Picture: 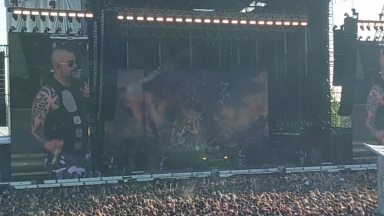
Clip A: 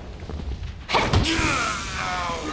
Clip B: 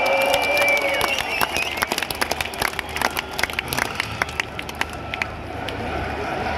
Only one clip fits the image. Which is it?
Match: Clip B